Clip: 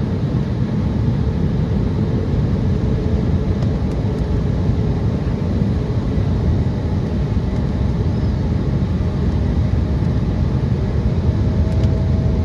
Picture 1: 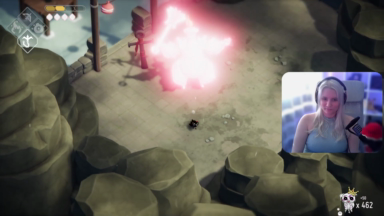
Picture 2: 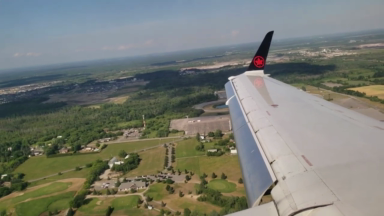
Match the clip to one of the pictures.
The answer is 2